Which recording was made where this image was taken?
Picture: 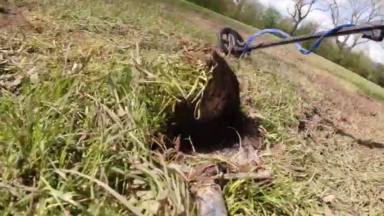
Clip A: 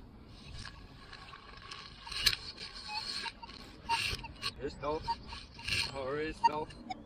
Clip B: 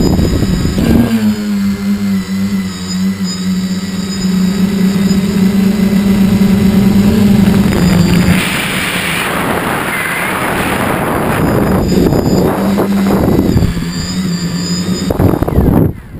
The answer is A